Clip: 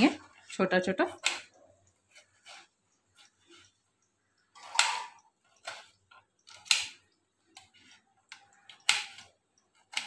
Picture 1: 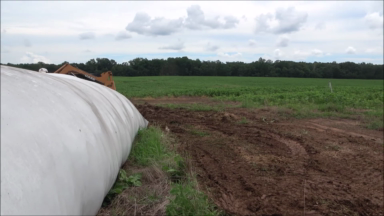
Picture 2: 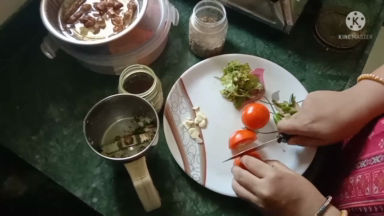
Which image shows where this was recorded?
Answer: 2